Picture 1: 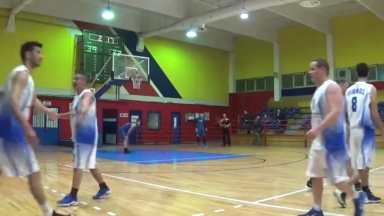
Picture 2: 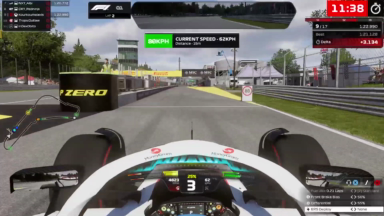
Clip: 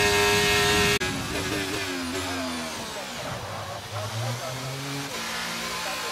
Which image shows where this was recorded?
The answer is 2